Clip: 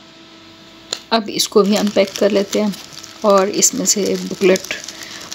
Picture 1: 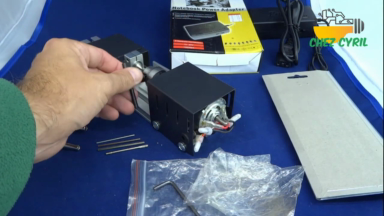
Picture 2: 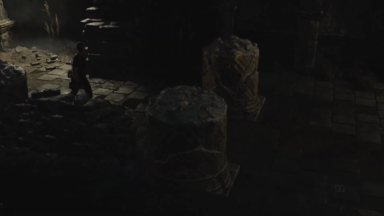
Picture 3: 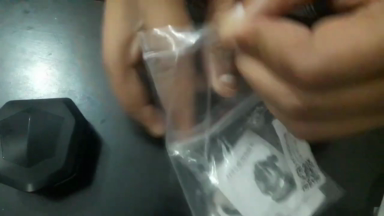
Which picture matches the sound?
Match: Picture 3